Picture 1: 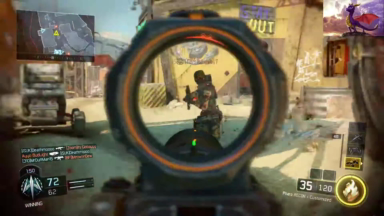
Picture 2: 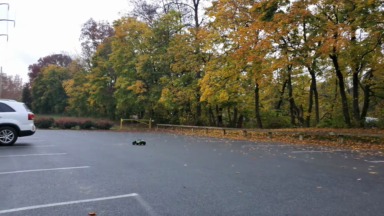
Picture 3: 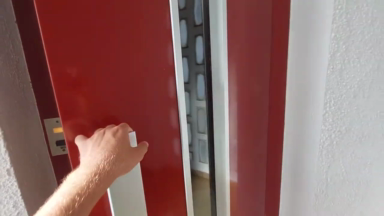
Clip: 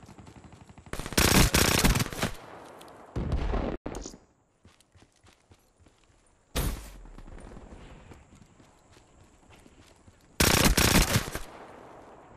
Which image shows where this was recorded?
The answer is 1